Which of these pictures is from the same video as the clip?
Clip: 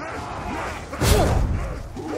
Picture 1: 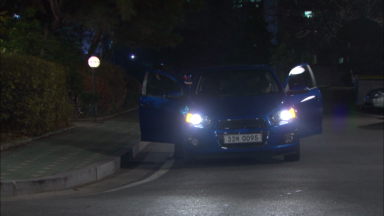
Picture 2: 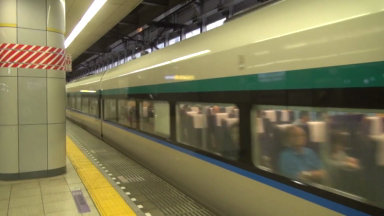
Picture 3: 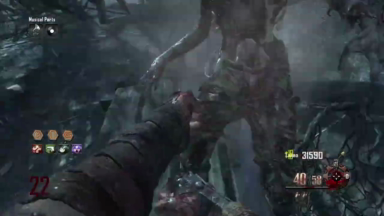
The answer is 3